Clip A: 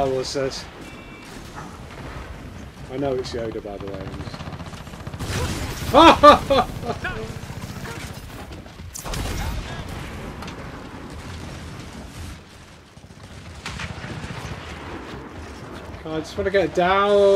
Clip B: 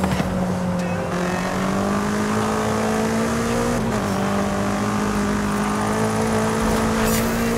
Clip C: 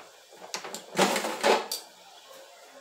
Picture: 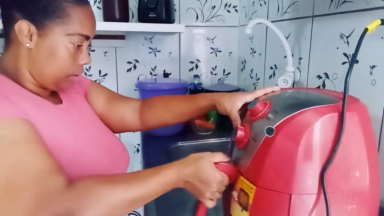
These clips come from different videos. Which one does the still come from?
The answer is C